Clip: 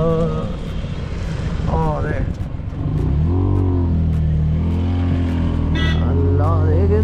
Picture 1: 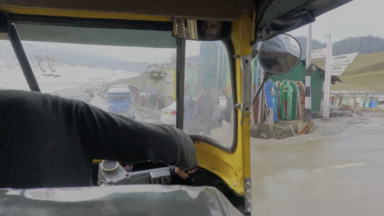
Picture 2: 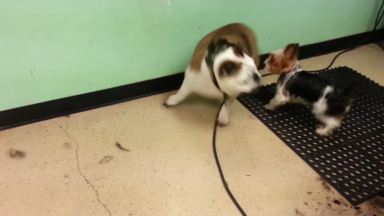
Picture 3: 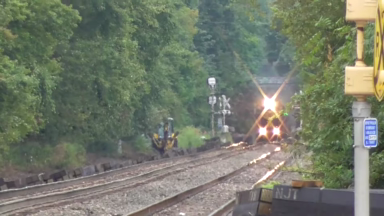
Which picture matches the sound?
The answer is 1